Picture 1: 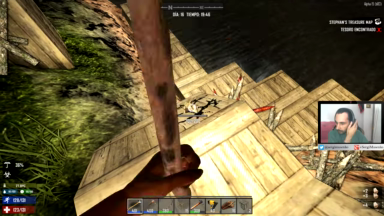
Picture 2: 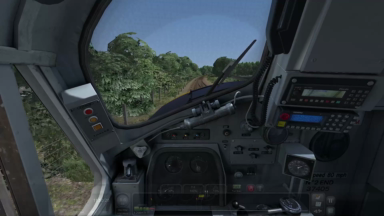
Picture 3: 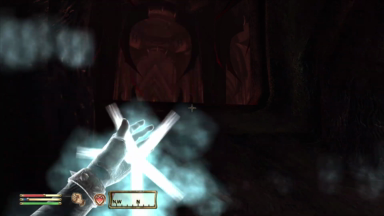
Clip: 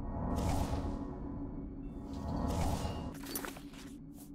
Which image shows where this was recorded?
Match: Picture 3